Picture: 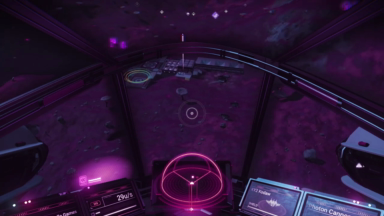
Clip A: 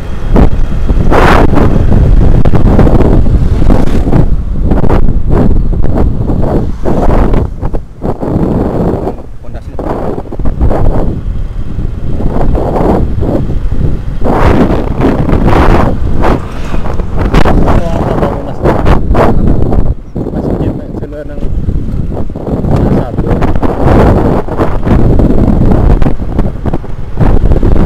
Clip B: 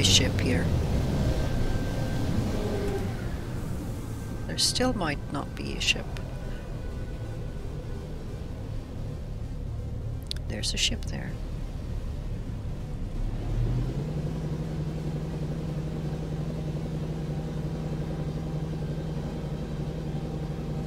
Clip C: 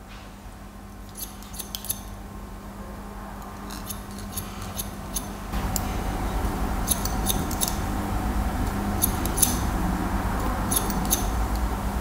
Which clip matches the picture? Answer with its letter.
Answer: B